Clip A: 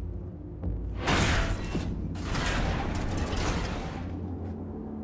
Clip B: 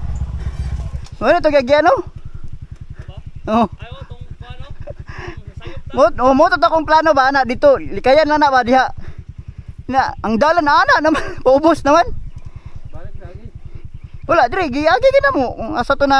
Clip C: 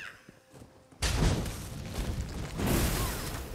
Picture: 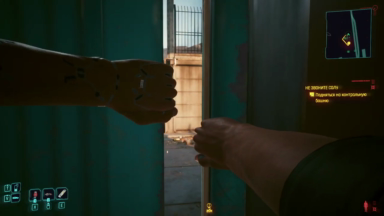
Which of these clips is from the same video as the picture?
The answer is A